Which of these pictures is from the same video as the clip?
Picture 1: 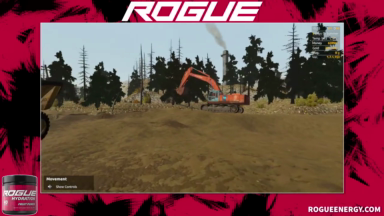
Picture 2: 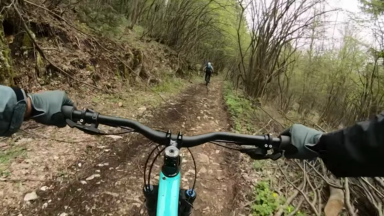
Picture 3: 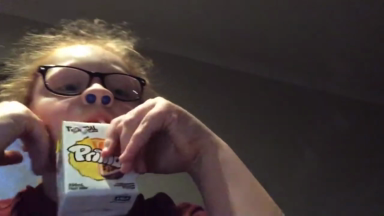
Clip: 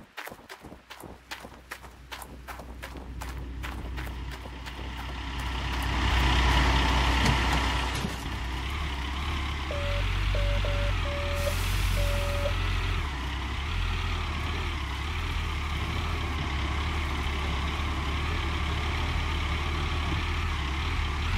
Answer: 1